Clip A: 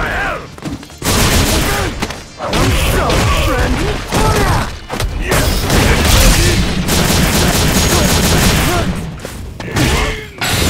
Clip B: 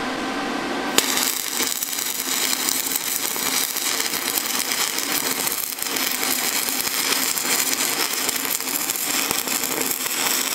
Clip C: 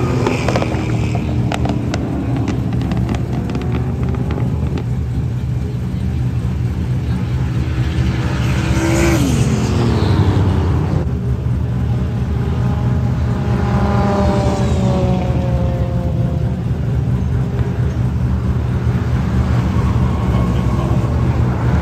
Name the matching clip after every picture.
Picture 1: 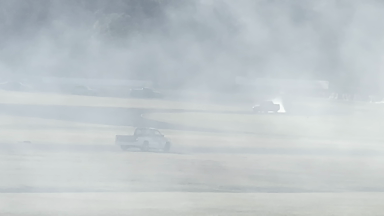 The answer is C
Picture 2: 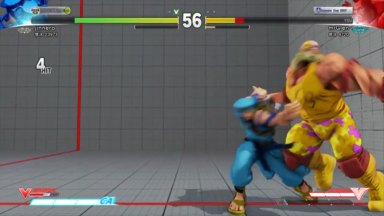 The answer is A